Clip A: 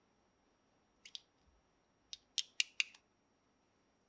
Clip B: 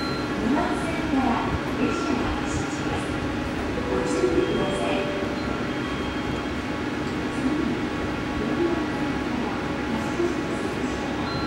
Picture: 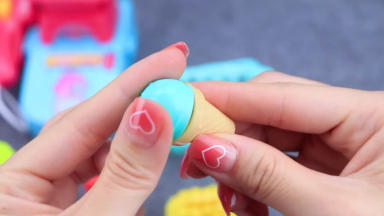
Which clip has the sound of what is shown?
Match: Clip A